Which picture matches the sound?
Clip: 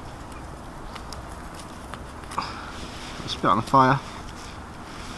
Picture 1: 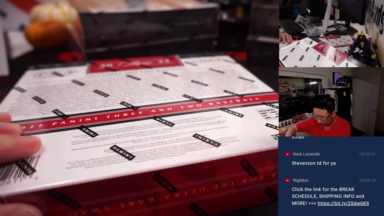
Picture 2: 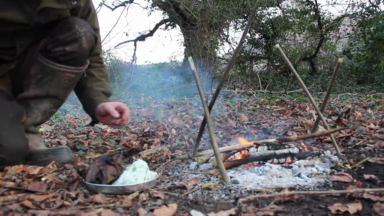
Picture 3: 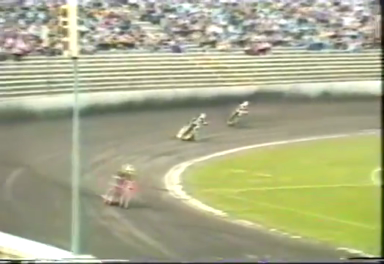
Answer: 2